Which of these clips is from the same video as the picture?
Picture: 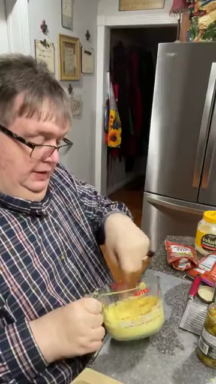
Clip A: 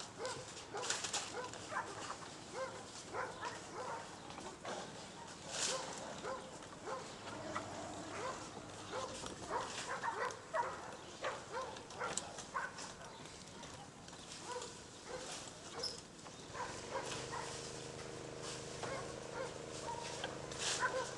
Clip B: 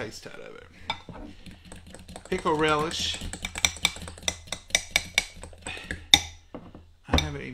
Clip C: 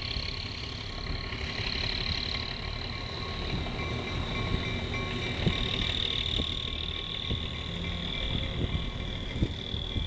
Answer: B